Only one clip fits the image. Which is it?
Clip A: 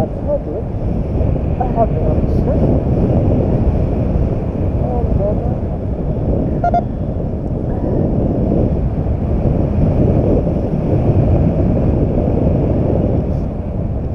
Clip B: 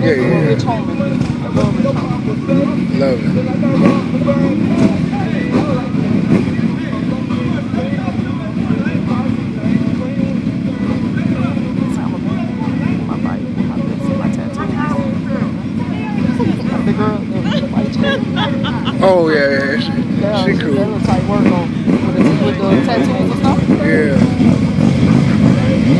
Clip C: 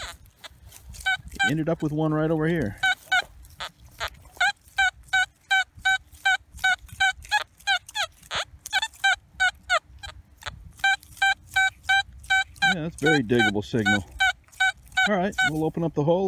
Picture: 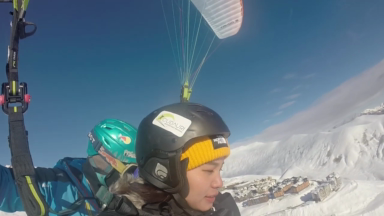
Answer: A